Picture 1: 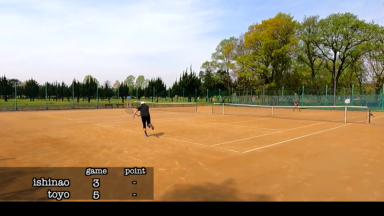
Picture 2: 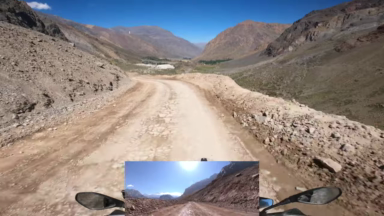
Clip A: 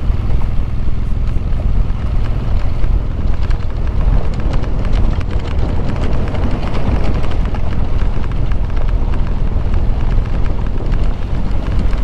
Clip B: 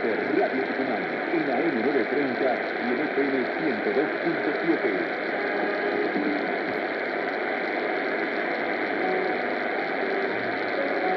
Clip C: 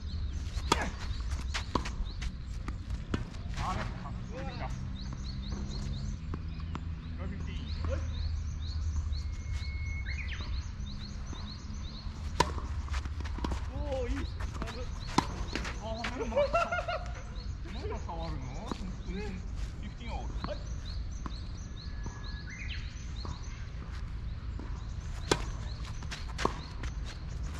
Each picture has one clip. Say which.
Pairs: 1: C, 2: A